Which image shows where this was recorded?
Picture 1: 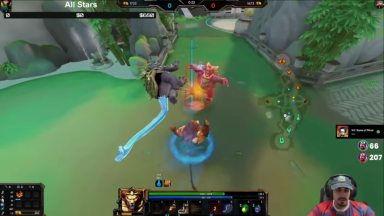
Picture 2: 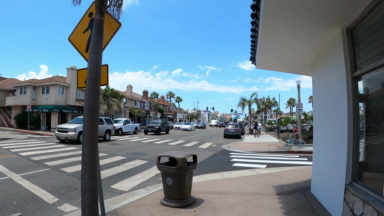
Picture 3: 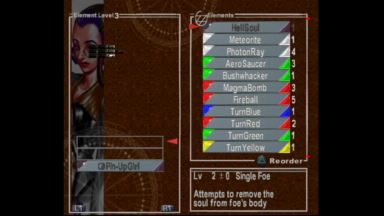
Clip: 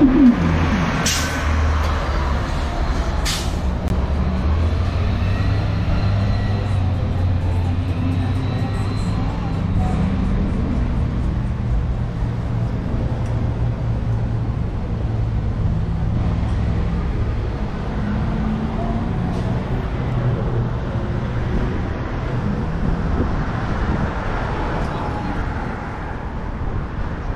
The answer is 2